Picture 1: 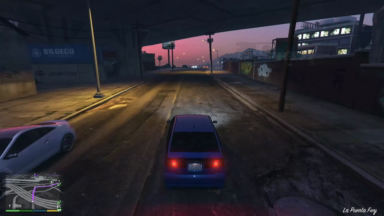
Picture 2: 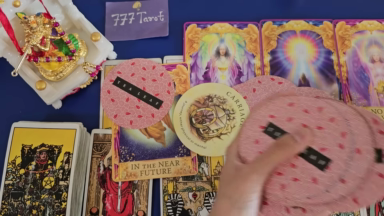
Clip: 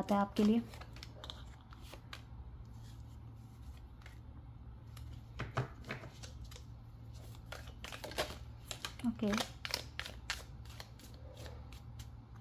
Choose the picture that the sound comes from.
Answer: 2